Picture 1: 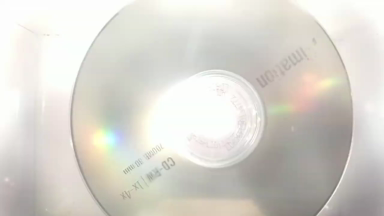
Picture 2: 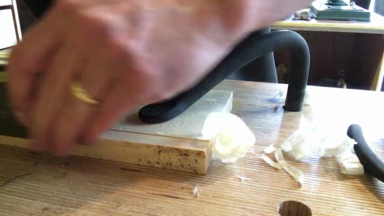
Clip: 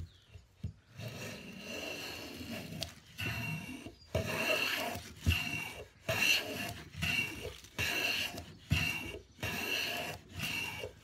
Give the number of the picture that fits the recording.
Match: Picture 2